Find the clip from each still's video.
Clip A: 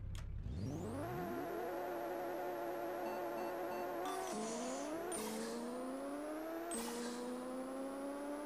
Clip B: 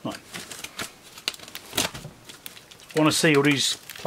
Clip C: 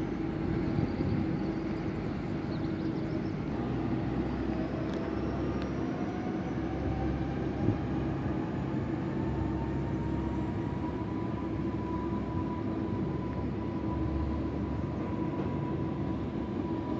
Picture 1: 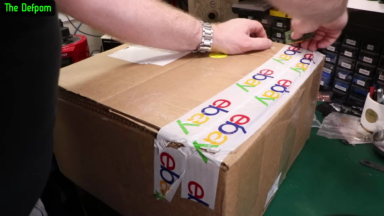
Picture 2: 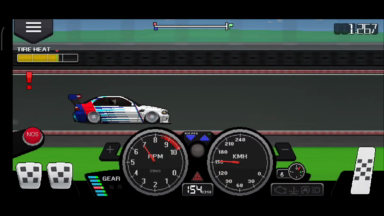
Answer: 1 B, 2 A